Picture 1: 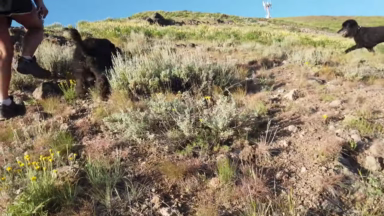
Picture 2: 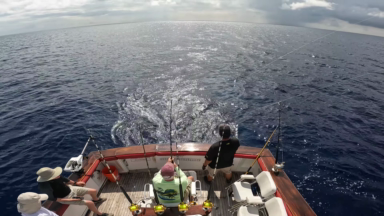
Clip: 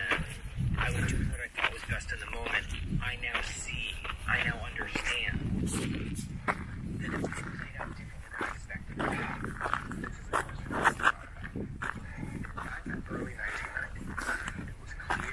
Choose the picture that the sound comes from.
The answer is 1